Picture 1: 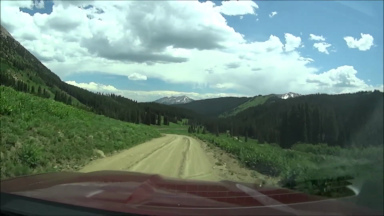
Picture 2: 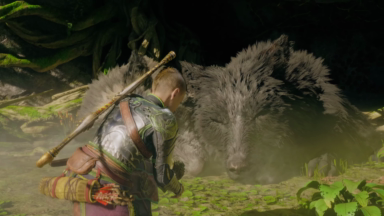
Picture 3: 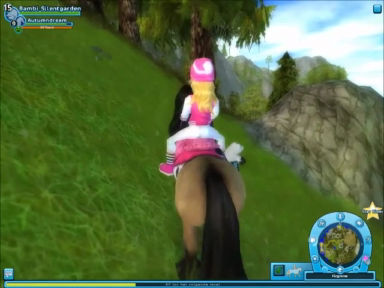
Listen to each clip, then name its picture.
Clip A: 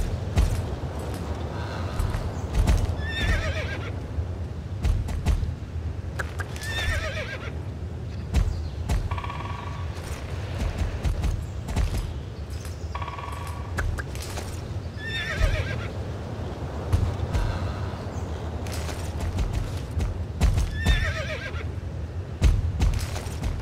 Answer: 3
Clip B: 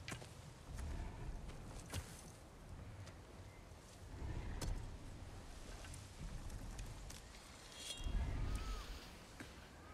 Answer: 2